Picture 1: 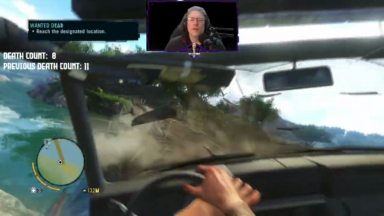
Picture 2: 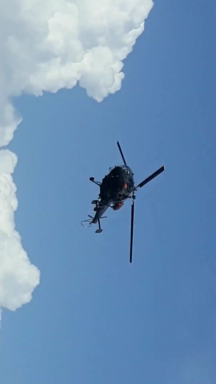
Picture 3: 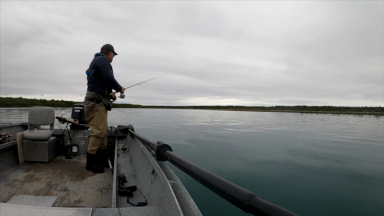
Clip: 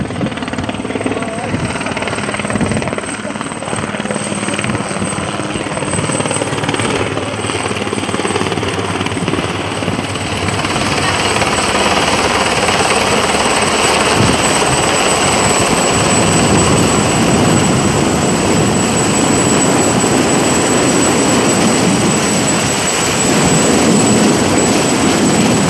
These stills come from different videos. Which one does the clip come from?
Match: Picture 2